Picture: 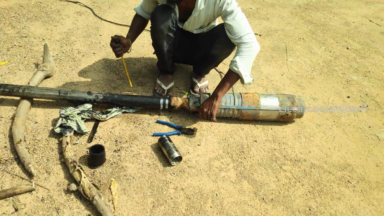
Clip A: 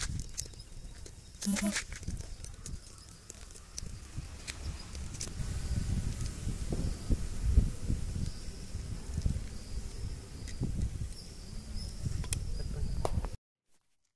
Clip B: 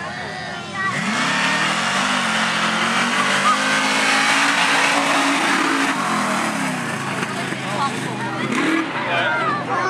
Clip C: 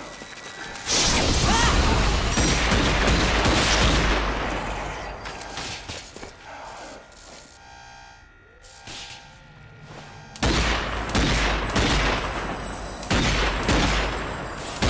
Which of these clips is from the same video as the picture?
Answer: A